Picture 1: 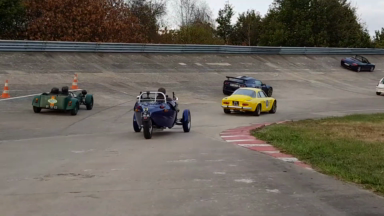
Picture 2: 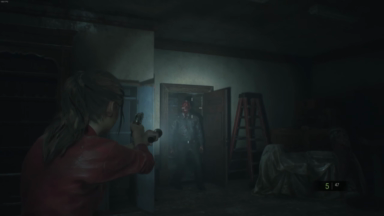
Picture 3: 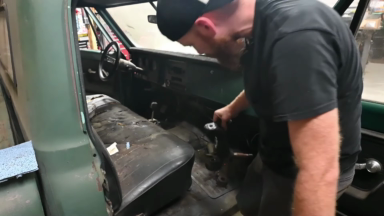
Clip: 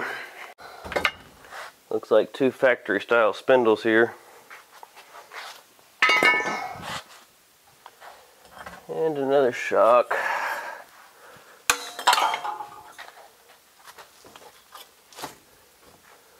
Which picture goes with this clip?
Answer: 3